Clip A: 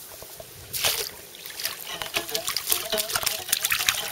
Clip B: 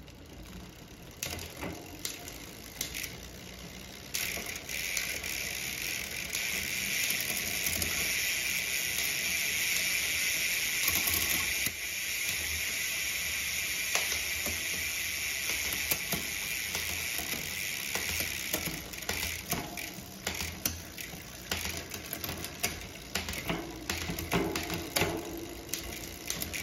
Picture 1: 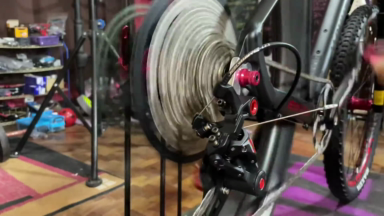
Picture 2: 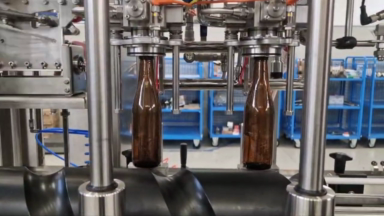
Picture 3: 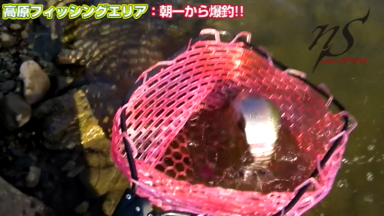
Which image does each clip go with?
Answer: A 3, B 1